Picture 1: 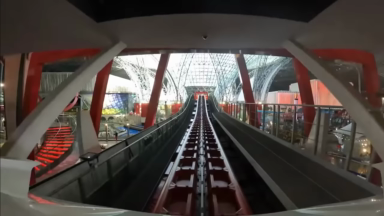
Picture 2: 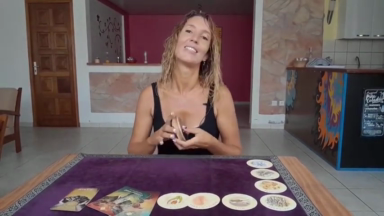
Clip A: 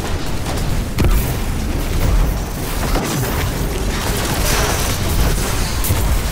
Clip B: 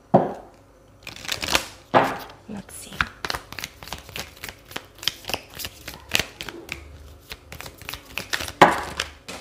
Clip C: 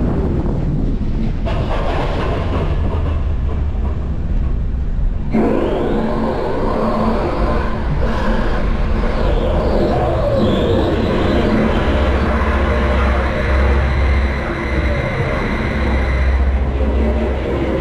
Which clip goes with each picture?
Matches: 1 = C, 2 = B